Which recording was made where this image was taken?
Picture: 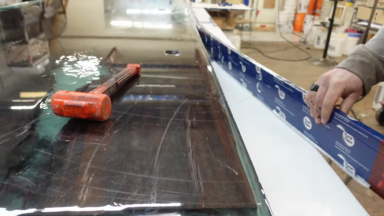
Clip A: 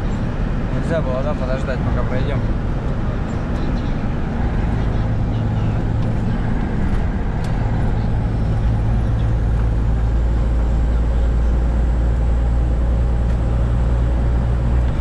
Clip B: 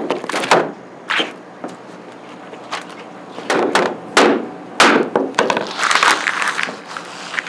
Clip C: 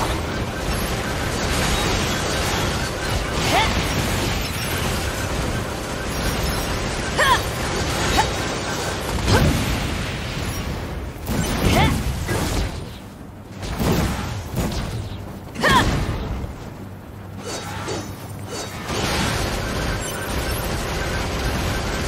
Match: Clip B